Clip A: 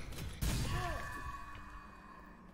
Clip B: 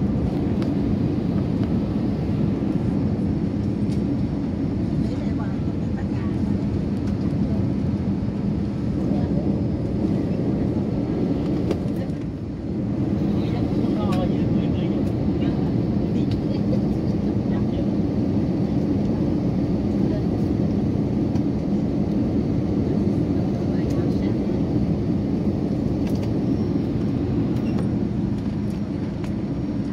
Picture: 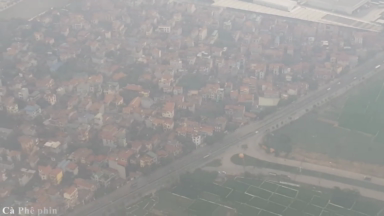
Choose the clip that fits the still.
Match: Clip B